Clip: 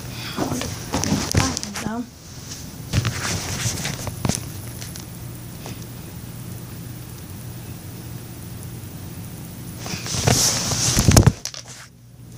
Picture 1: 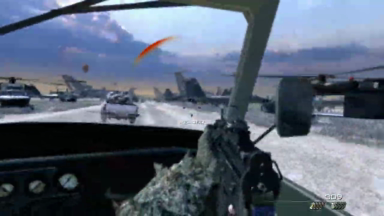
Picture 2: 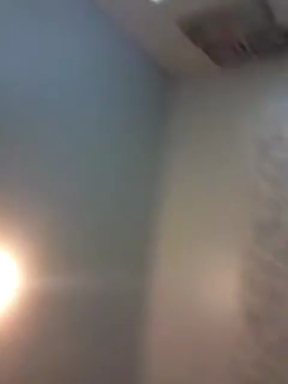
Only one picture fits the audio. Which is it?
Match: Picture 2